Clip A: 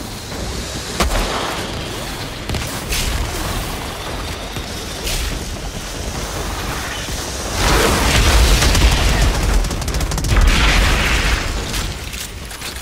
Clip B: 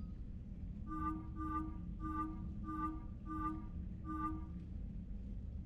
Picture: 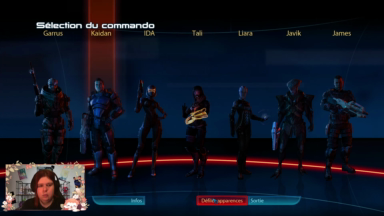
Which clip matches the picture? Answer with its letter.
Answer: B